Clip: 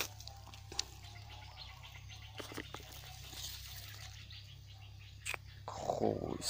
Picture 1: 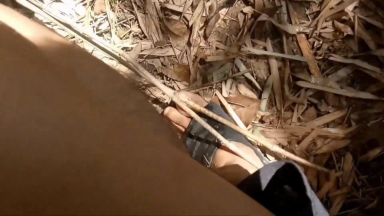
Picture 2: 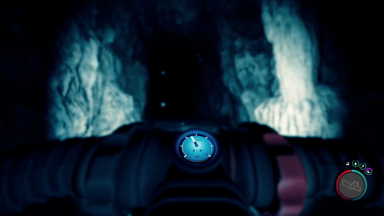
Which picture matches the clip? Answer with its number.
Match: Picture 1